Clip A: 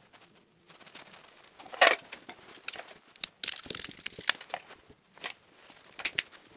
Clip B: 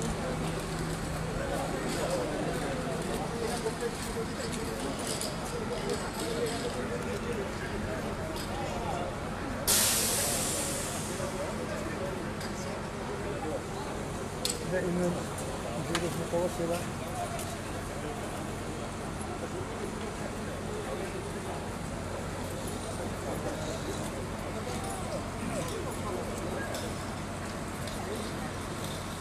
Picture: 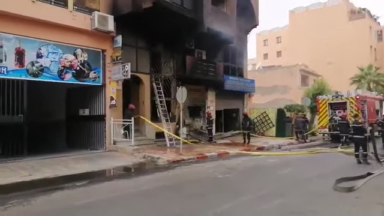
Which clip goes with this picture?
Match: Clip B